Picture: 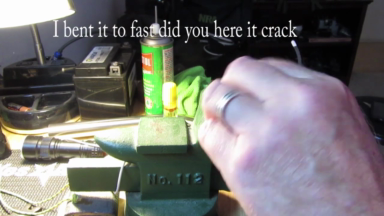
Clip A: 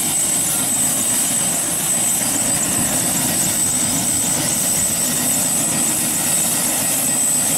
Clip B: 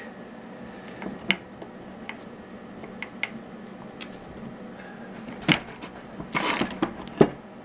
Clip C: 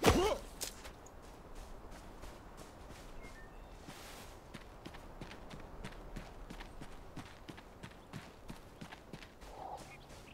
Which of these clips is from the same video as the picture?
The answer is B